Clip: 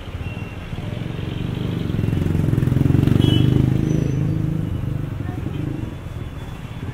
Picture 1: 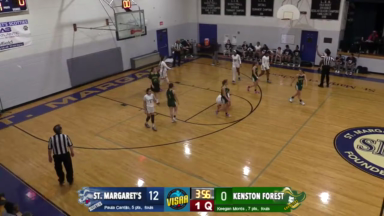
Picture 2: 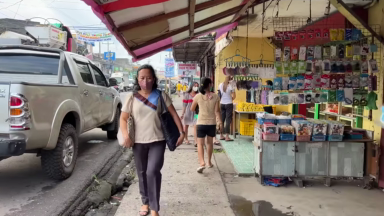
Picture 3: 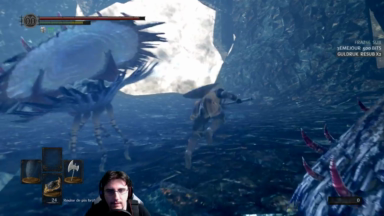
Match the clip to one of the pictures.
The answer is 2